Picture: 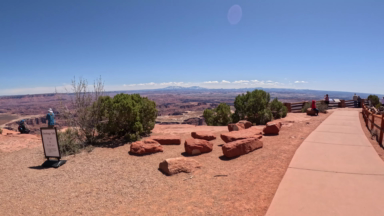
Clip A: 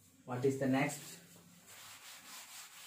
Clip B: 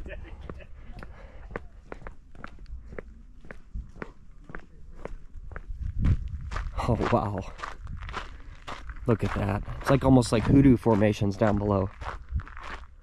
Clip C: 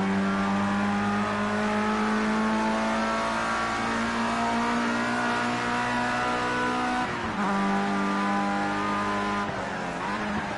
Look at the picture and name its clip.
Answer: B